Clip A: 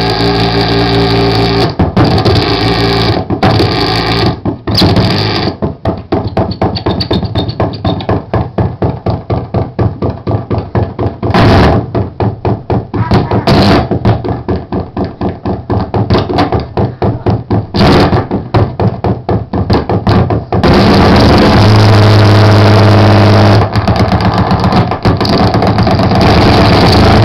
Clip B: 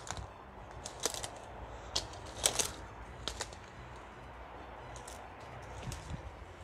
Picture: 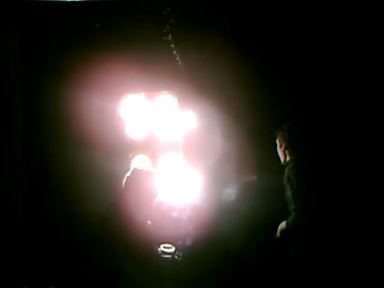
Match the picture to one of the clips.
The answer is A